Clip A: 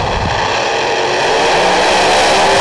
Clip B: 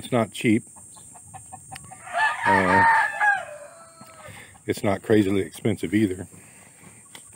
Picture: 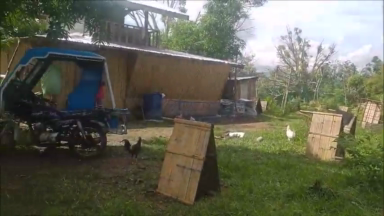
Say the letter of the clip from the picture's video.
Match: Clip B